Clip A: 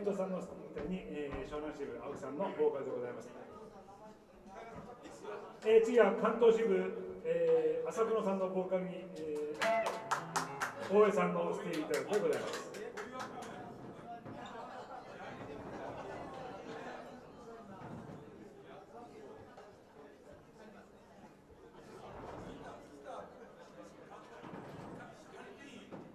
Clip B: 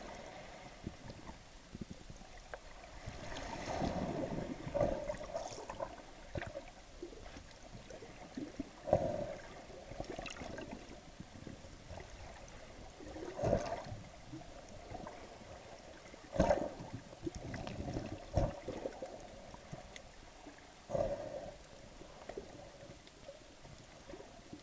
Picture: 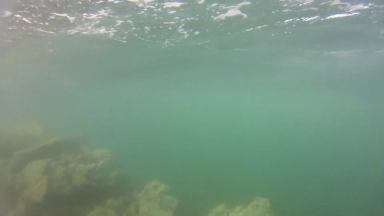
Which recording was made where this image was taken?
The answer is B